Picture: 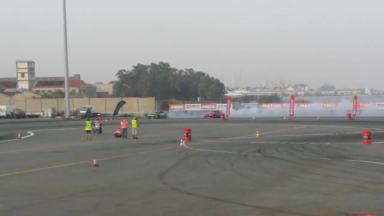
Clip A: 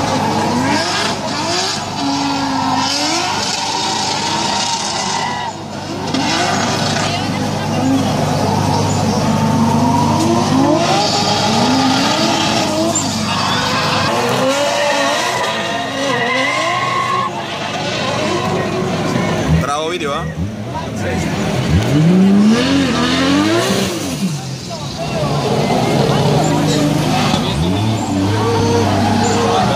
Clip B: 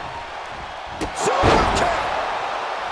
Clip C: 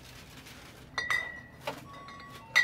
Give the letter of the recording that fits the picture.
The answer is A